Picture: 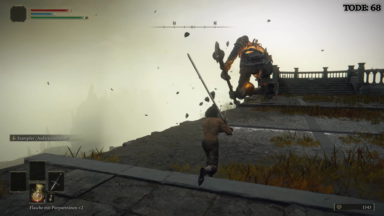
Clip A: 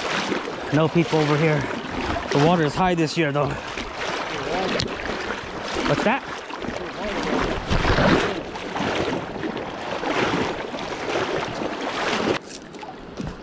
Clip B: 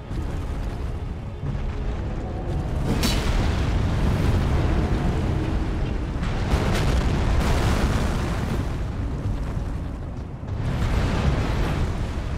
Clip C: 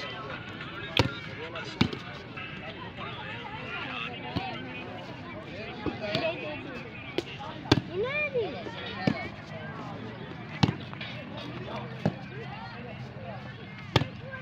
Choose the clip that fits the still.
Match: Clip B